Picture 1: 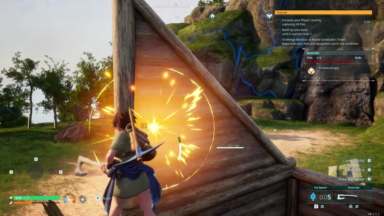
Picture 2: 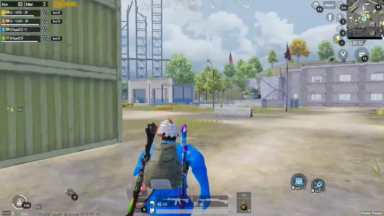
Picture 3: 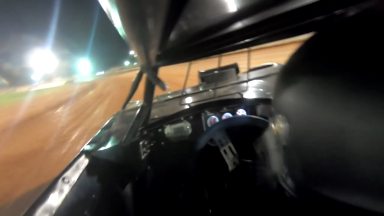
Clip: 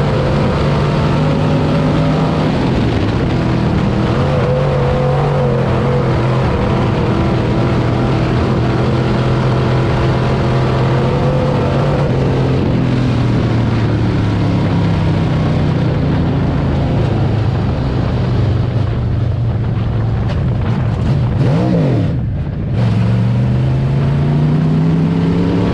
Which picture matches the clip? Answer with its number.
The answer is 3